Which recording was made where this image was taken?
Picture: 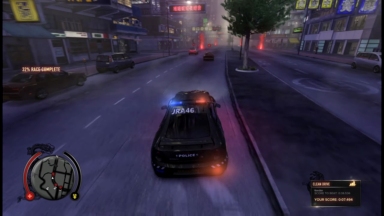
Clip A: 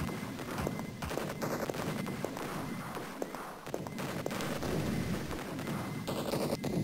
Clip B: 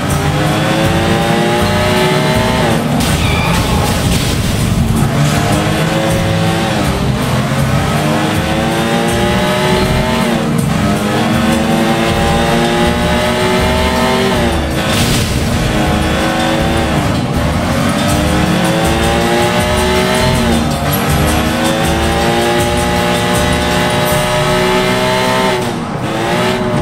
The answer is B